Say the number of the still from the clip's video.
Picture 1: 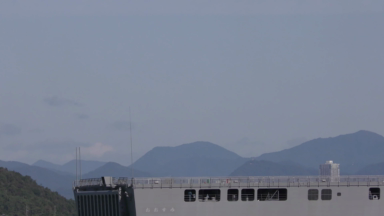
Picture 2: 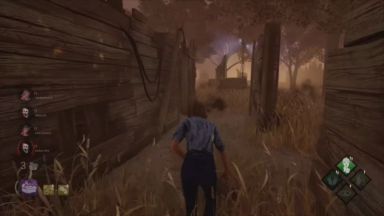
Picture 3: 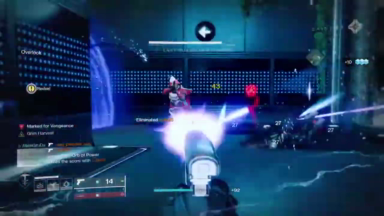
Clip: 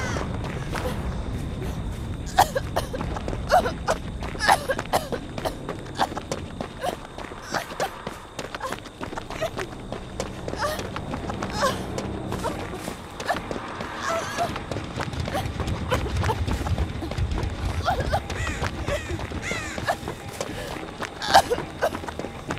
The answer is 2